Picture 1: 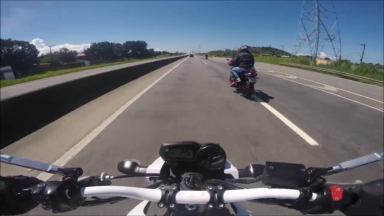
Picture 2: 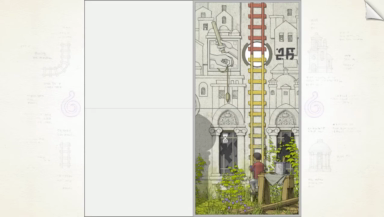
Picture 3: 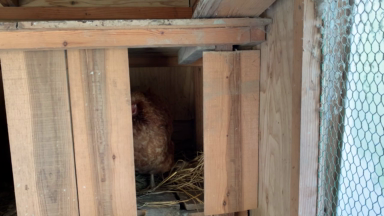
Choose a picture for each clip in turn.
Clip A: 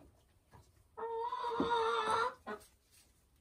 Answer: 3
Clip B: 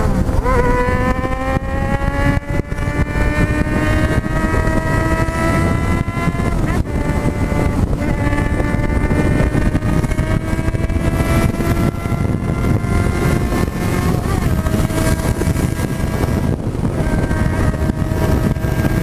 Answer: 1